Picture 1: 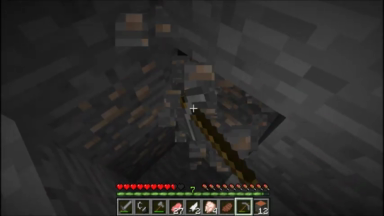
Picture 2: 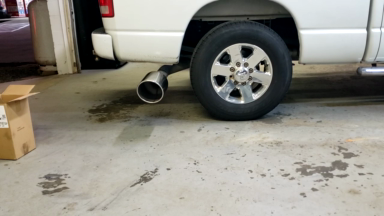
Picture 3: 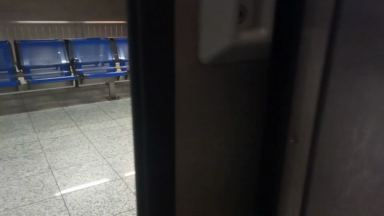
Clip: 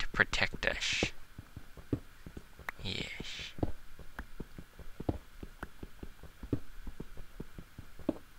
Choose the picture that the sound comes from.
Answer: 1